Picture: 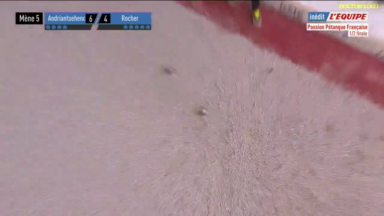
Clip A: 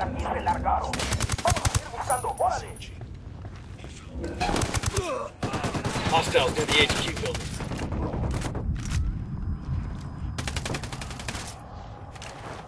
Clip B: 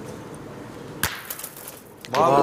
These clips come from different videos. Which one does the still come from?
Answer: B